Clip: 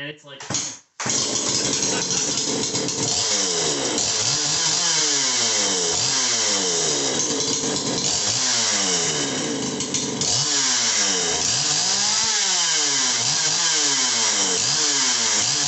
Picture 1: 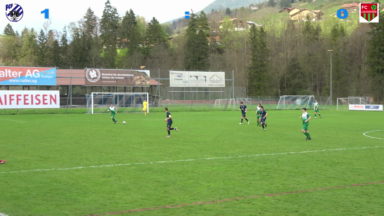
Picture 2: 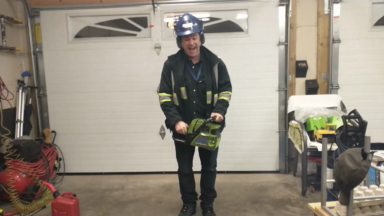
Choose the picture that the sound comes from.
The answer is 2